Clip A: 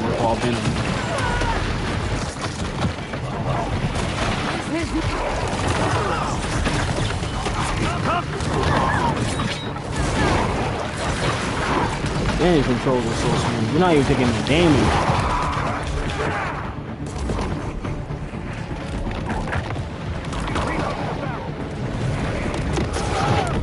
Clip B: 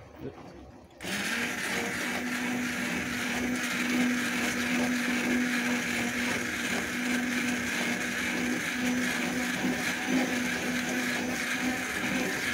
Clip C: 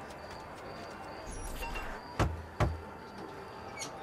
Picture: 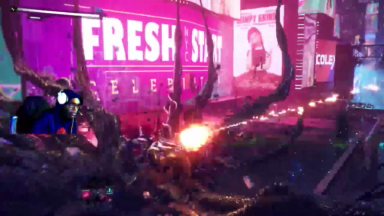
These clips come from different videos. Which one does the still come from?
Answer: A